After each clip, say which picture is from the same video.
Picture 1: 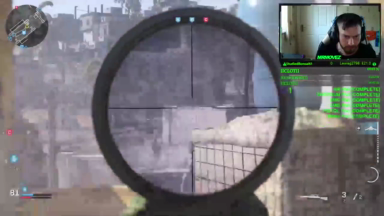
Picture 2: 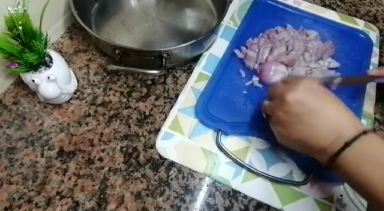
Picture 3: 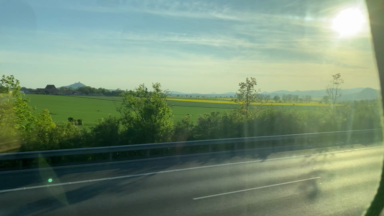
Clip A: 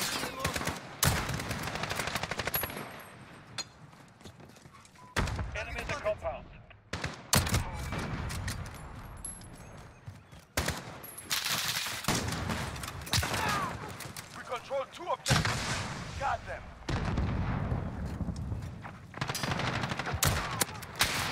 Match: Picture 1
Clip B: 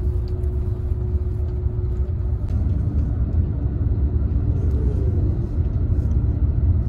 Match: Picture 3